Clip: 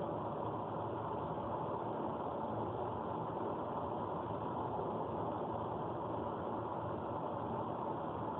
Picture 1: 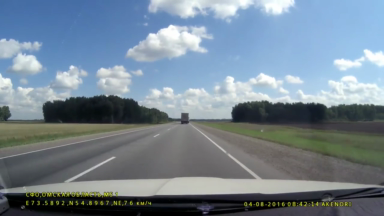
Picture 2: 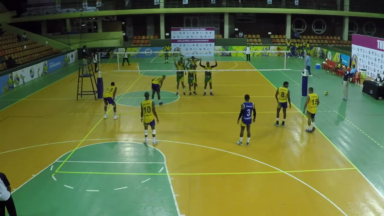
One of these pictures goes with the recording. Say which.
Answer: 1